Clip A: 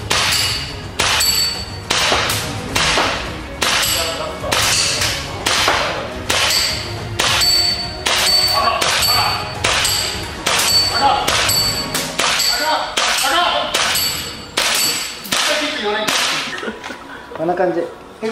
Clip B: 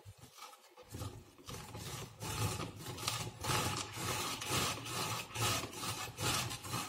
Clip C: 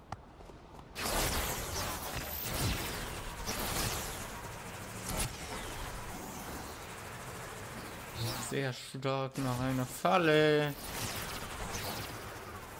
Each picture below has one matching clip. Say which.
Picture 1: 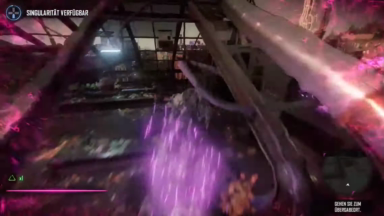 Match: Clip C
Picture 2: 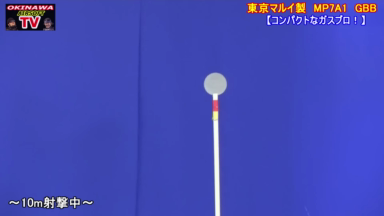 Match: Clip A